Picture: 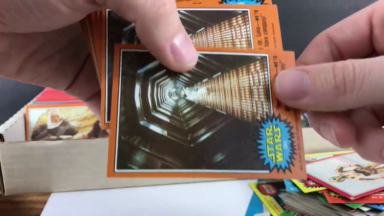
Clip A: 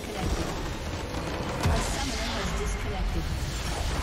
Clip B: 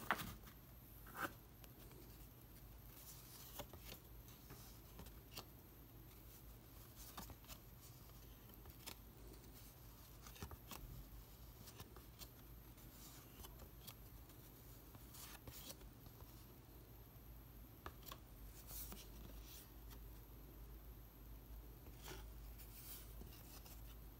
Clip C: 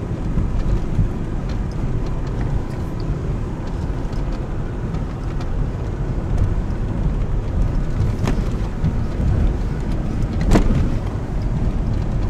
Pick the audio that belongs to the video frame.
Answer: B